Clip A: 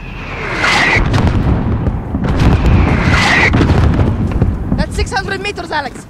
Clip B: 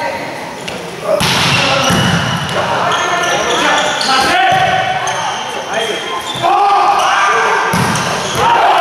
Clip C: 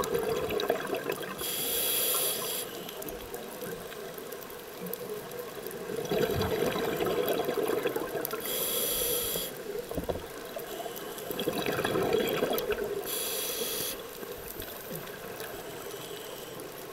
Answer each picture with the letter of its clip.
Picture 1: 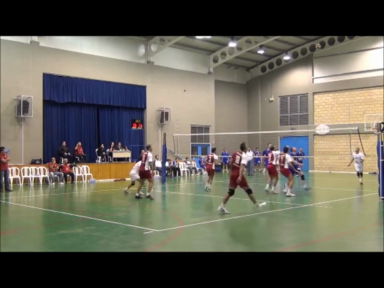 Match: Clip B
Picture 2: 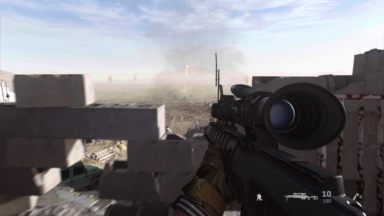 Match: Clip A